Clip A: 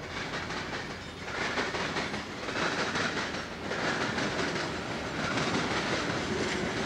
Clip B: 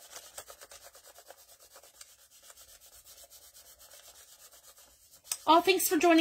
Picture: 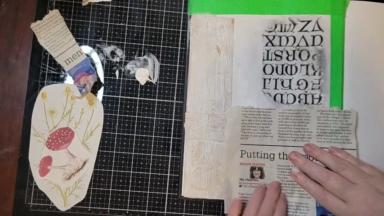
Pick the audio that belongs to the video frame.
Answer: B